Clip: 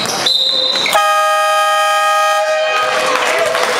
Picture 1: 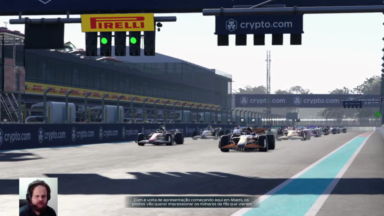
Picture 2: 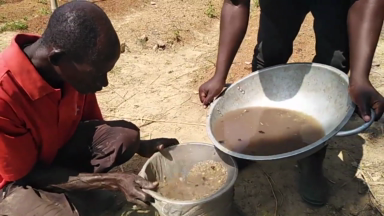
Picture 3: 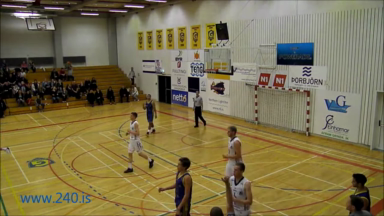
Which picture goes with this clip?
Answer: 3